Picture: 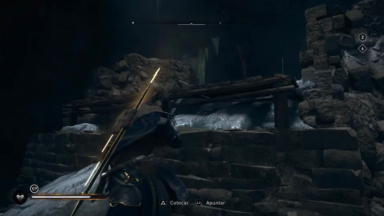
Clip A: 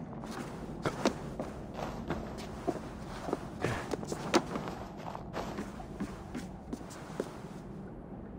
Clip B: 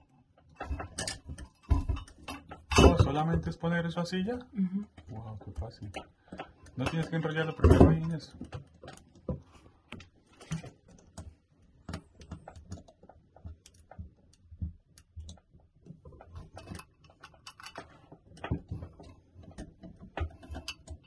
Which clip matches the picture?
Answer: A